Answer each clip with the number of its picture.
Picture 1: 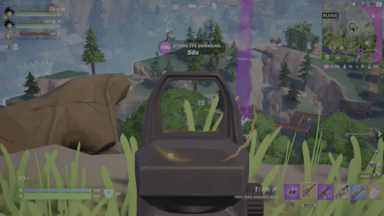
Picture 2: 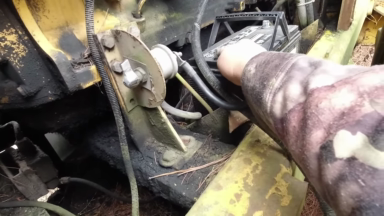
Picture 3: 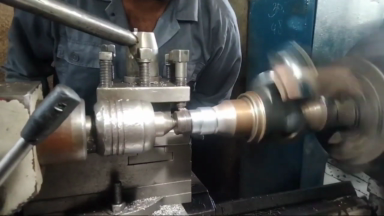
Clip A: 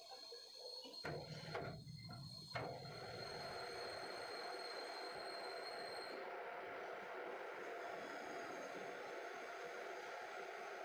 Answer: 3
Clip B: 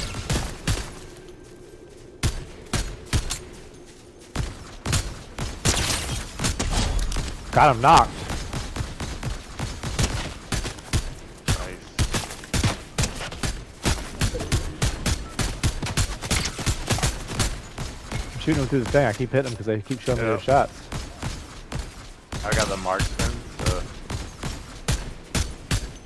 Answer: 1